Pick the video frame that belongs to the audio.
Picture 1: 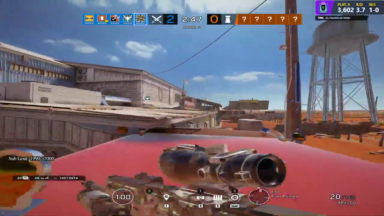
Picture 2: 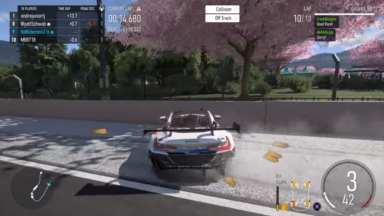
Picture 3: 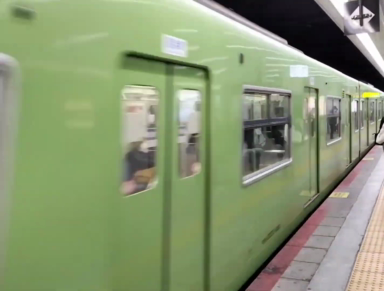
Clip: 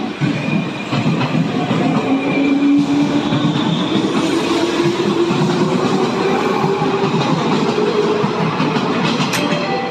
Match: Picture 3